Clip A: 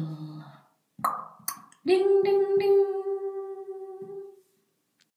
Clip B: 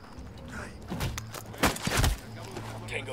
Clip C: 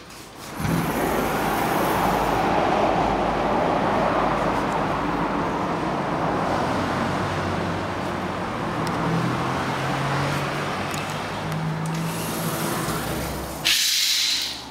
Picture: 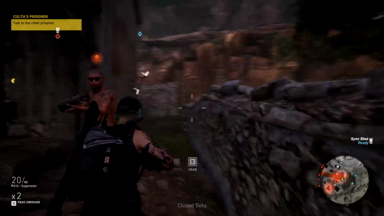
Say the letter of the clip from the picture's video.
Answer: B